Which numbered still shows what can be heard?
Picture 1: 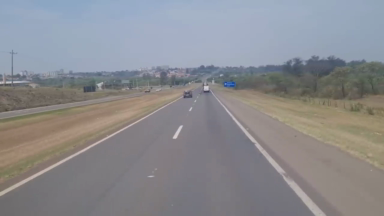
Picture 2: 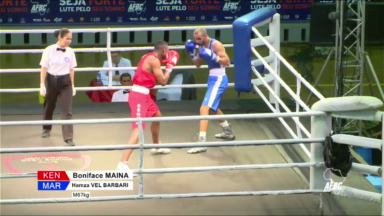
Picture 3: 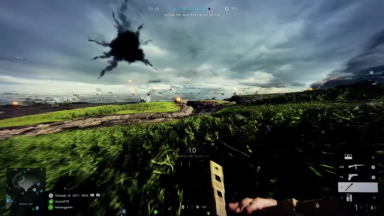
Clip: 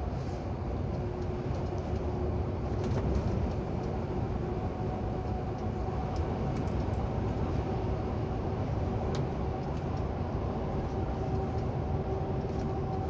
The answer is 1